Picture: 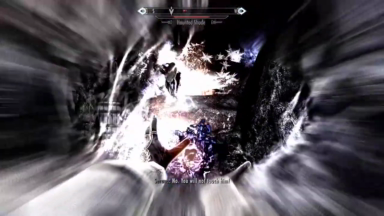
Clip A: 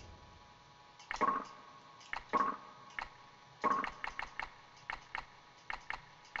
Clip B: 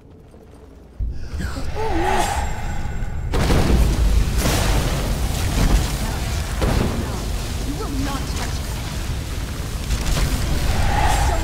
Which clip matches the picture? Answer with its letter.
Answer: B